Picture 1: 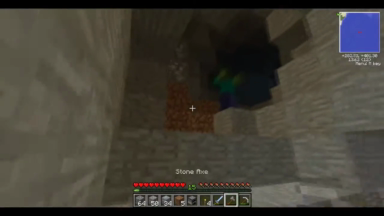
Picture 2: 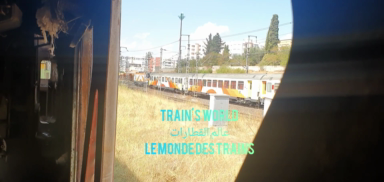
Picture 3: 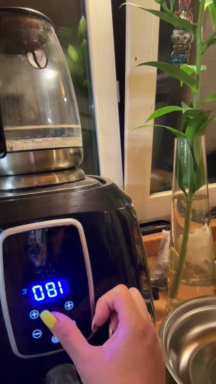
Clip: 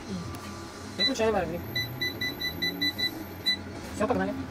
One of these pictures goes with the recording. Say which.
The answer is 3